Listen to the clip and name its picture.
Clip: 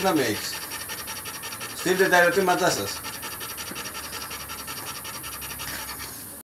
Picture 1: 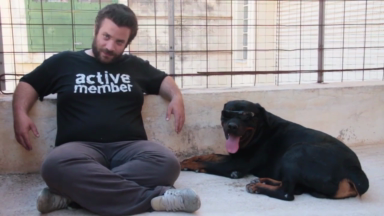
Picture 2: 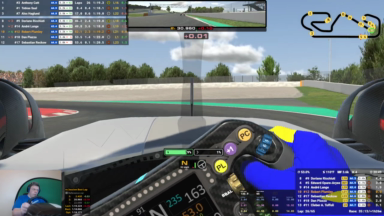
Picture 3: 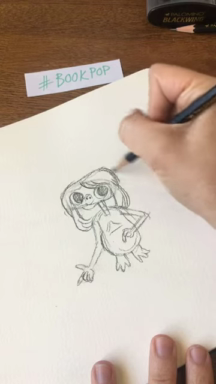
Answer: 1